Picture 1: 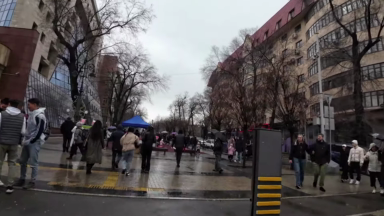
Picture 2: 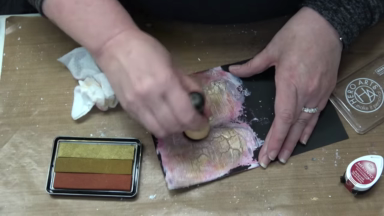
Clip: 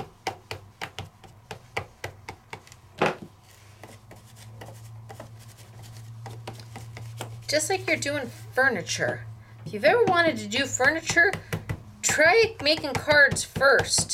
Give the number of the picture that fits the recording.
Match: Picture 2